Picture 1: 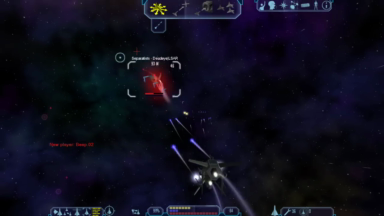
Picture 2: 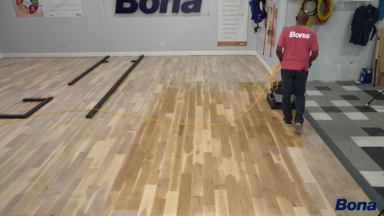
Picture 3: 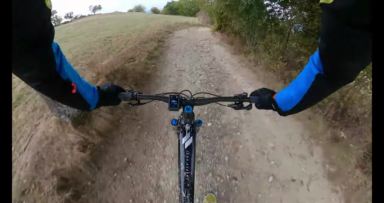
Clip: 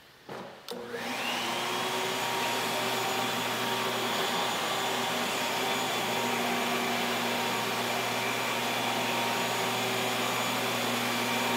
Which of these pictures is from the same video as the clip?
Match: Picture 2